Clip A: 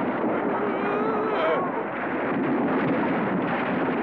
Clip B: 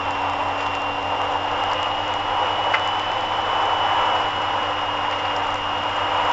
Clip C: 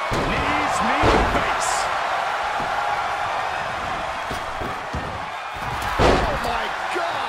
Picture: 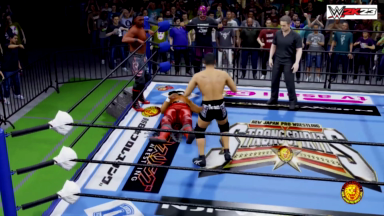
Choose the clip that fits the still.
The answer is C